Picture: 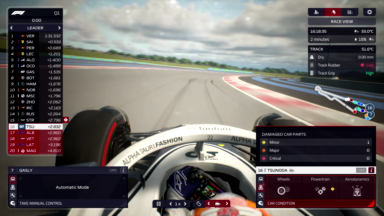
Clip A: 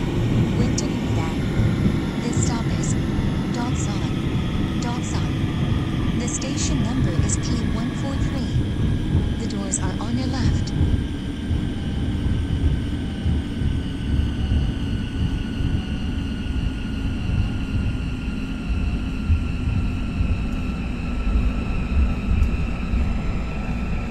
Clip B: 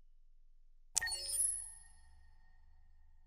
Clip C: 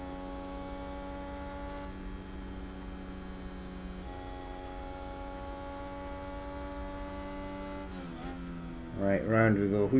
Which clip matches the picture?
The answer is C